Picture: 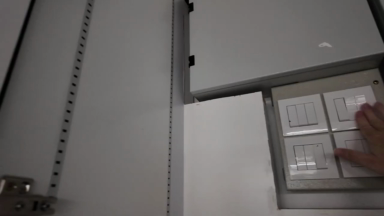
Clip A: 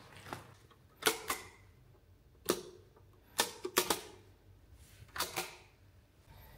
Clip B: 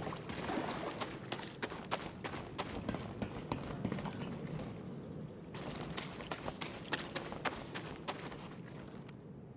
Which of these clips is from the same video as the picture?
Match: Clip A